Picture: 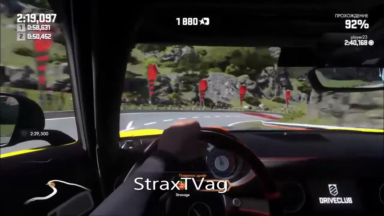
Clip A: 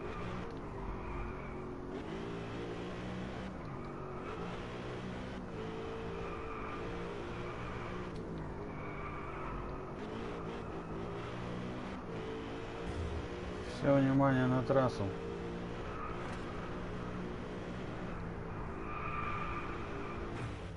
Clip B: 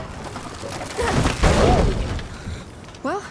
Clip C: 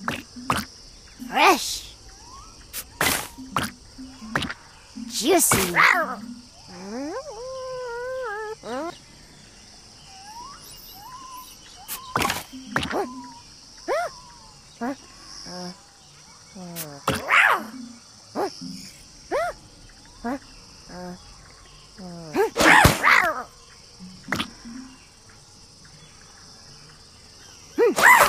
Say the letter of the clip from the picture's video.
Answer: A